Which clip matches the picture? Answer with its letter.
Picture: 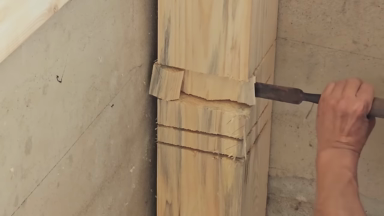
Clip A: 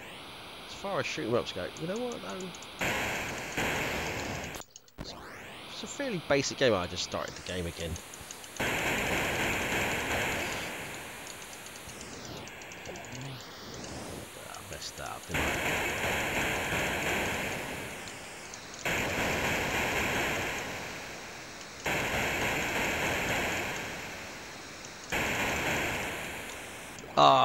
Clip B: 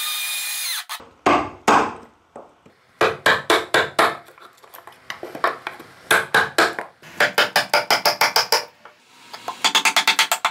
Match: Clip B